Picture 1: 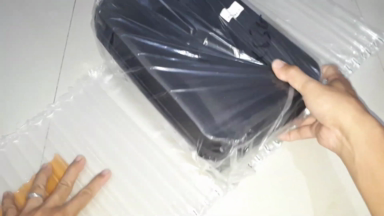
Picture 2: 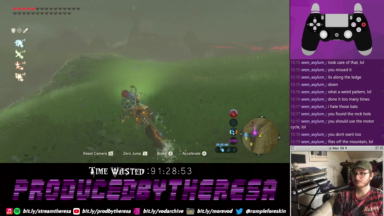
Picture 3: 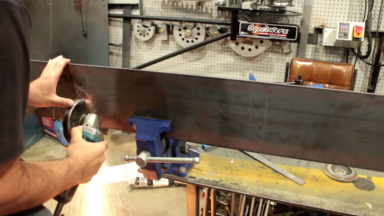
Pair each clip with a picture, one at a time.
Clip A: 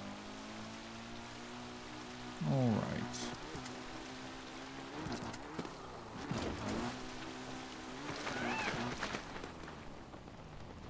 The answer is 2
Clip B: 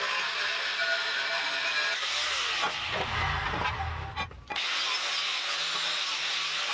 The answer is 3